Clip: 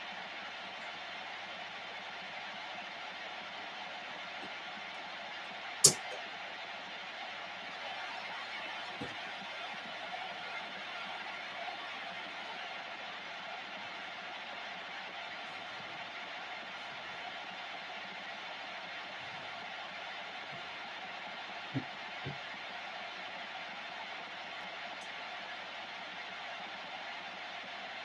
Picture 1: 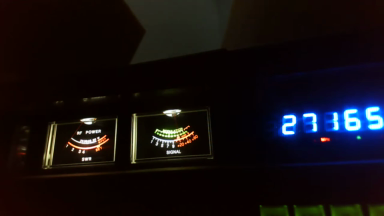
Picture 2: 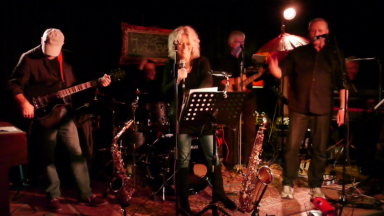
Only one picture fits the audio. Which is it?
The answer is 1